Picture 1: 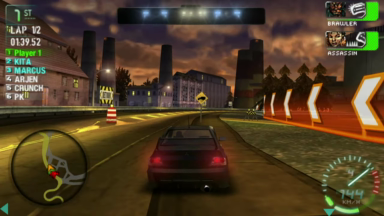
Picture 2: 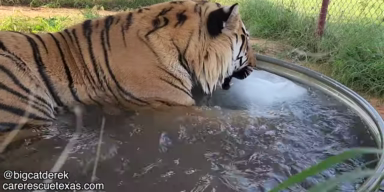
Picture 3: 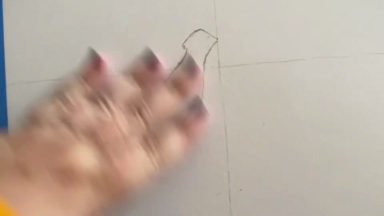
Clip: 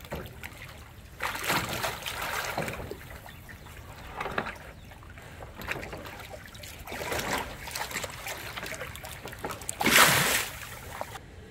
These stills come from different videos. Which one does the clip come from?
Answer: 2